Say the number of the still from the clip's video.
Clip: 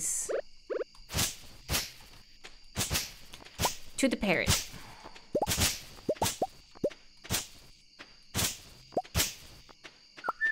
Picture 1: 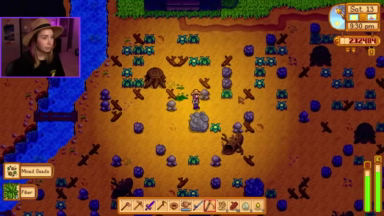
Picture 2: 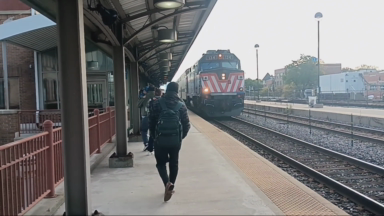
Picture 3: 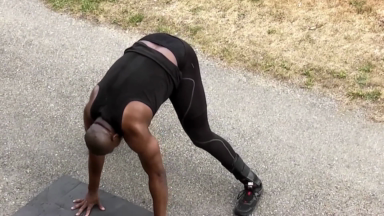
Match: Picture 1